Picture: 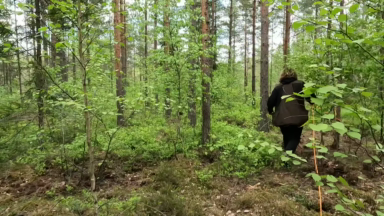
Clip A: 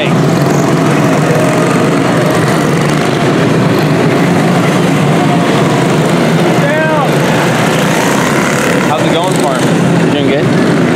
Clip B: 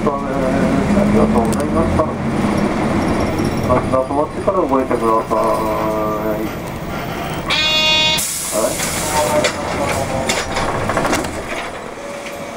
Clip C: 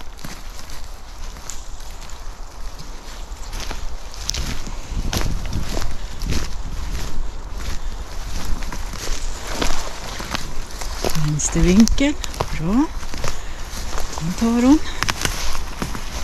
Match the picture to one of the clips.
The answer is C